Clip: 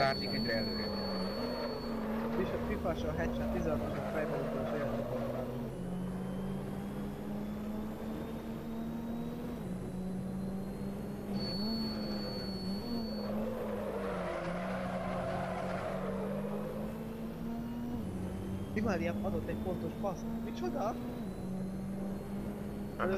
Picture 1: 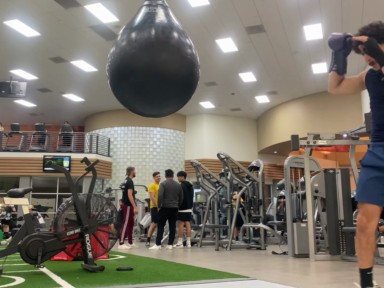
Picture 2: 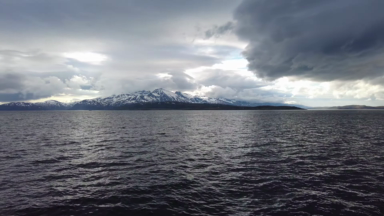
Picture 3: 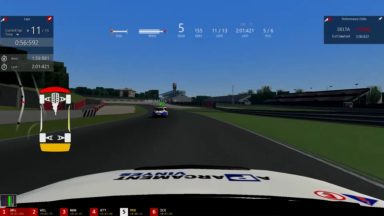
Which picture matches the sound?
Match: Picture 3